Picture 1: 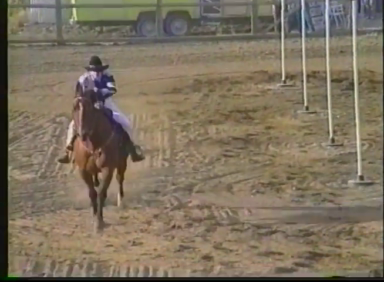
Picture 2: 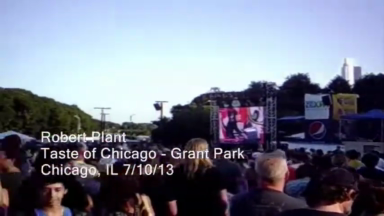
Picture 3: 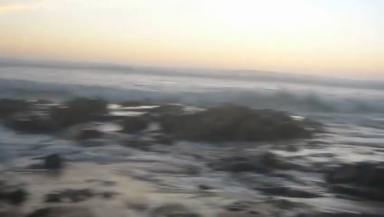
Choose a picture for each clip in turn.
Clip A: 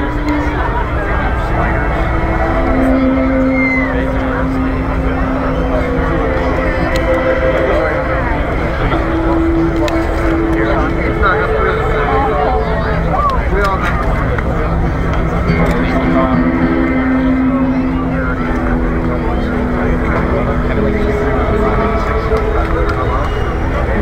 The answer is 2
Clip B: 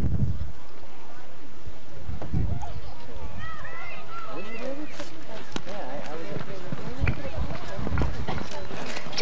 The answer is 1